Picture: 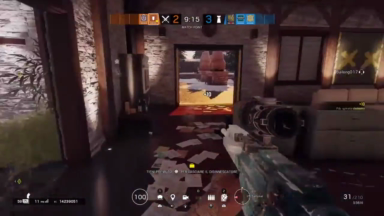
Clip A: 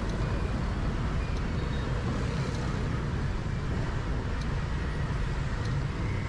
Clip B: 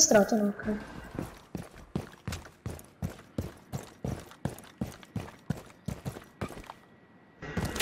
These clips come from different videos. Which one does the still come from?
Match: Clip B